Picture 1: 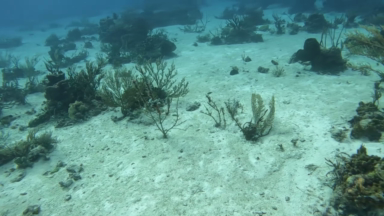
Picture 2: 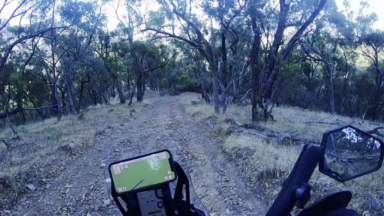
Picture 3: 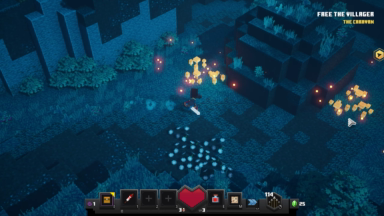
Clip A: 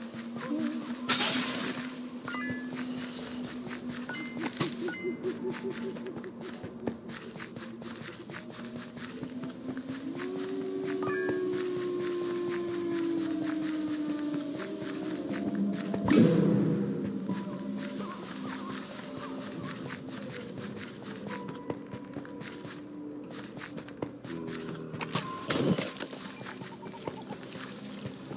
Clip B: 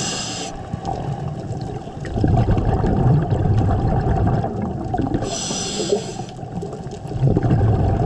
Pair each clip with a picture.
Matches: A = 3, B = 1